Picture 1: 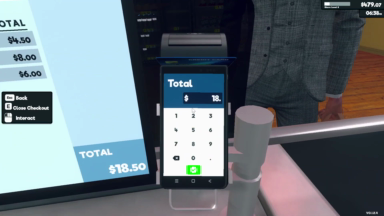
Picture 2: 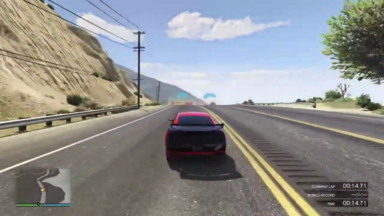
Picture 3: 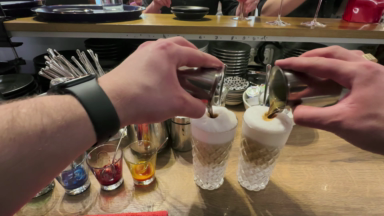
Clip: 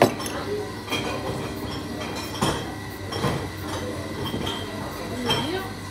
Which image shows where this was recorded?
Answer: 3